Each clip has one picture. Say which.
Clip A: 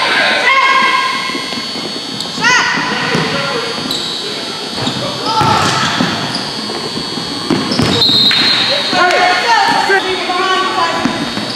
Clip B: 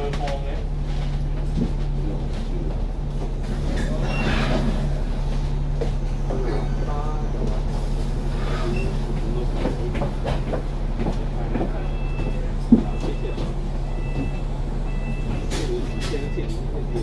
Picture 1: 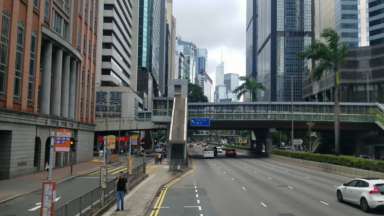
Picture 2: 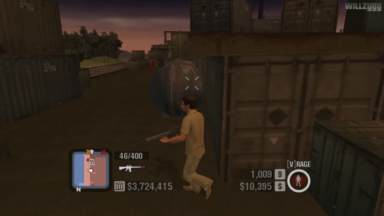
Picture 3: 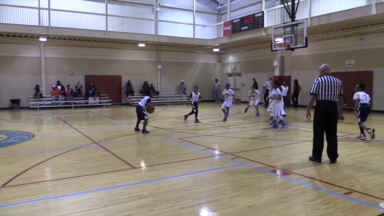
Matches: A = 3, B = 1